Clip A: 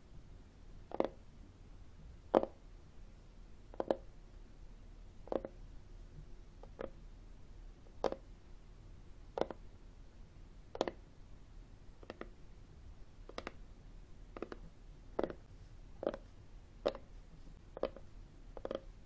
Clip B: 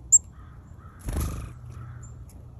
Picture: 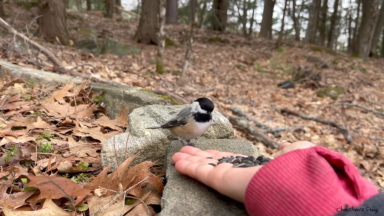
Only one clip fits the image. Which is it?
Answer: B